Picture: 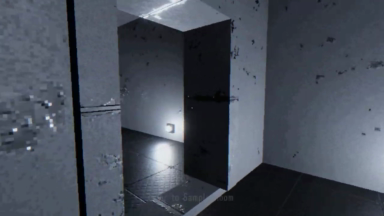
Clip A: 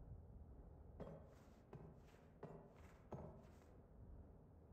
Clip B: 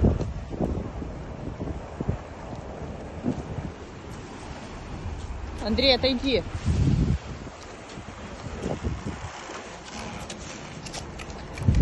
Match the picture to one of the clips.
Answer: A